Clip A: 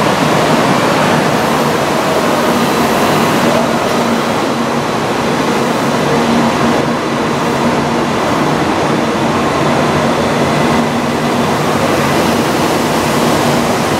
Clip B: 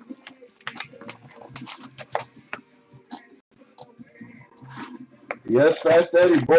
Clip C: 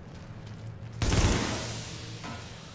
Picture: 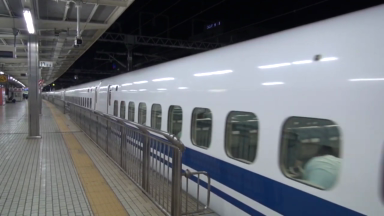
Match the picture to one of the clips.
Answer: A